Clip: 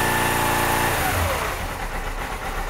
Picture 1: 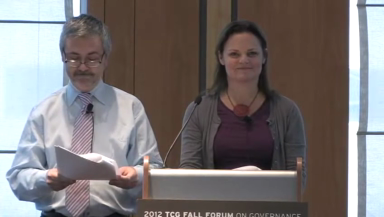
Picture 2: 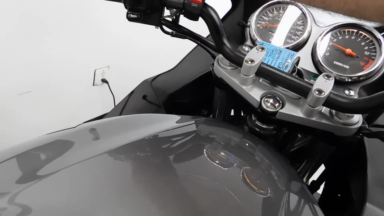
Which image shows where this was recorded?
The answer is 2